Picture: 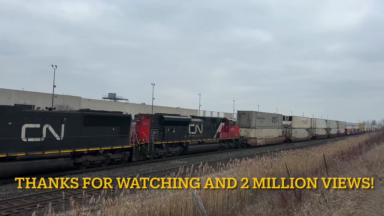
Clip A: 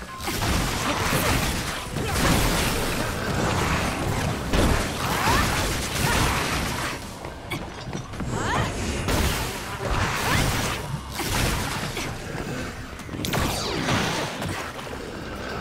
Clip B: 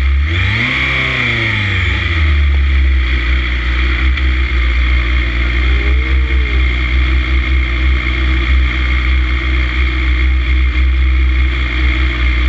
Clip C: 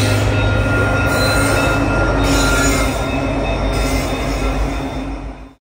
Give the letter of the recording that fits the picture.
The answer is C